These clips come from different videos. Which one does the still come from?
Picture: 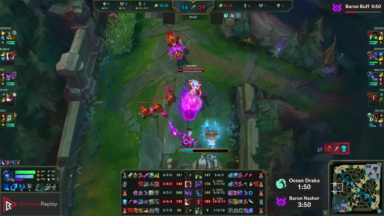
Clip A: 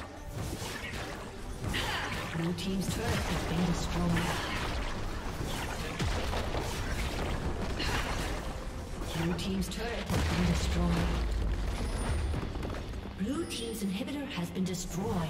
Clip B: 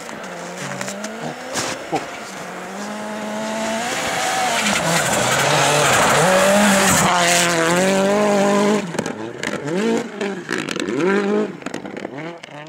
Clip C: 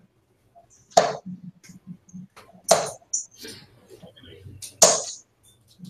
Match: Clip A